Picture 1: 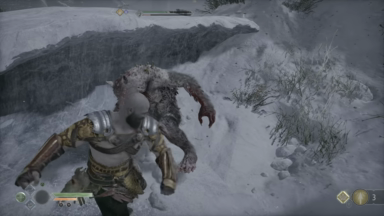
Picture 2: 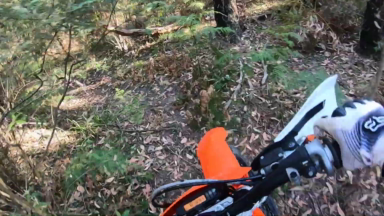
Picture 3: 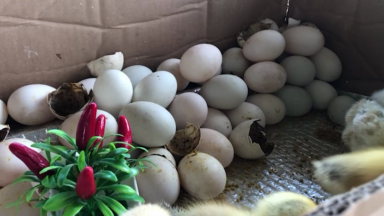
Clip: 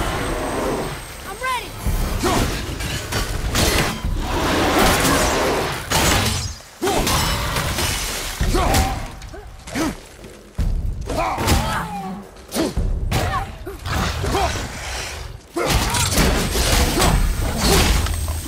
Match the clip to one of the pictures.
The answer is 1